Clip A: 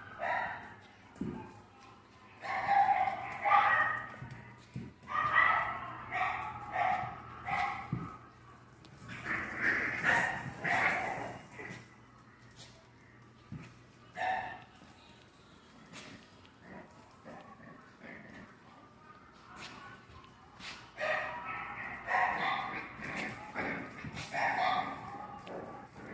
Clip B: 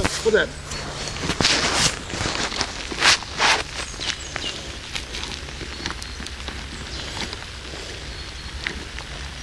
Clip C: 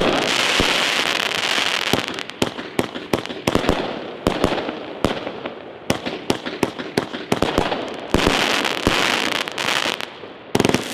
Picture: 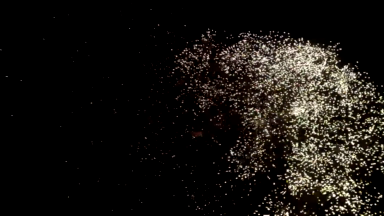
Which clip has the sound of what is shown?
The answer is C